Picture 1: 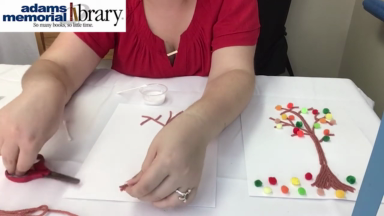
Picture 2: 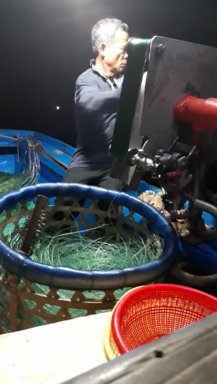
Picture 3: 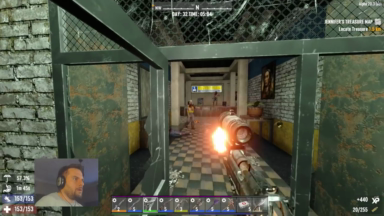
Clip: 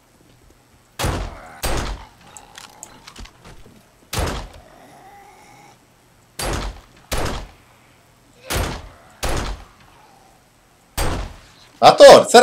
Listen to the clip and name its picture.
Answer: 3